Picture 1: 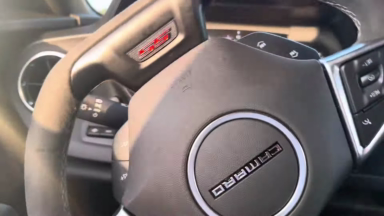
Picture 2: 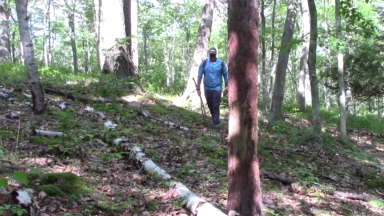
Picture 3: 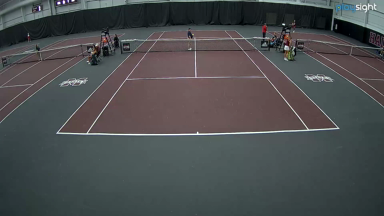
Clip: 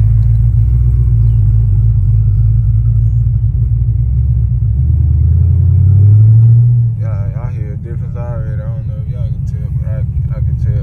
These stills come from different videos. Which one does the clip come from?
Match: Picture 1